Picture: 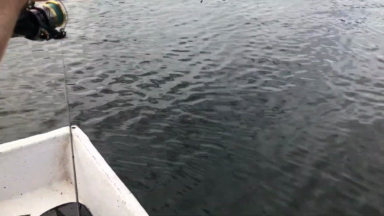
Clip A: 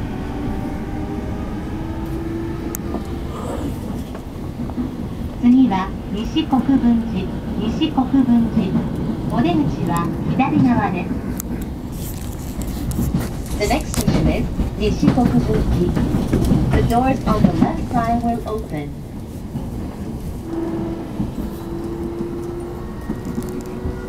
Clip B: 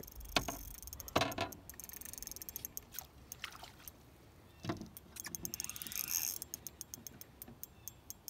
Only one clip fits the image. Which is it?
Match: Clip B